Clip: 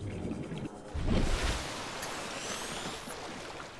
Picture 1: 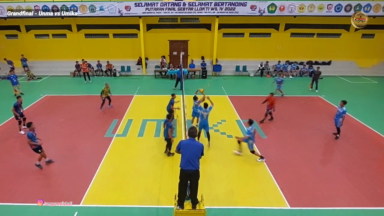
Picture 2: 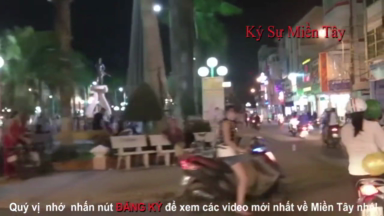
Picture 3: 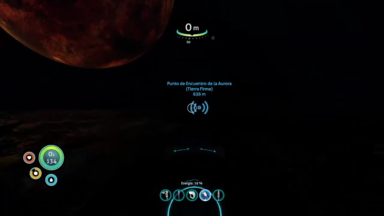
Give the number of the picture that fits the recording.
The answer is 3